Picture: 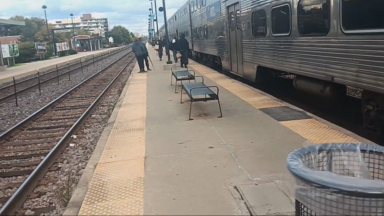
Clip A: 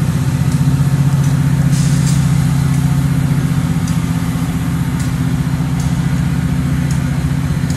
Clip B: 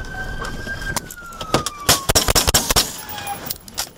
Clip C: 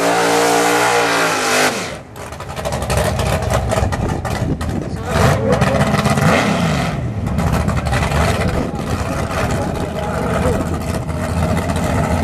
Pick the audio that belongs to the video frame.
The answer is A